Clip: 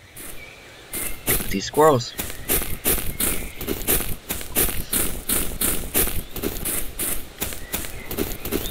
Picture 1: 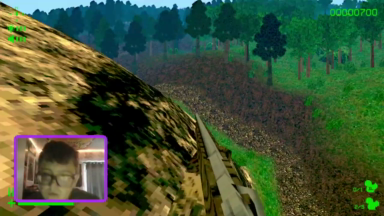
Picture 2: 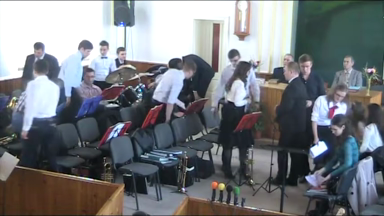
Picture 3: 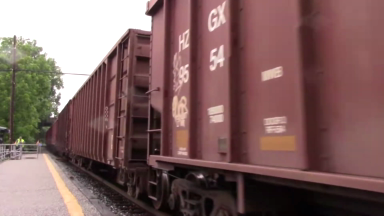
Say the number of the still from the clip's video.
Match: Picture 1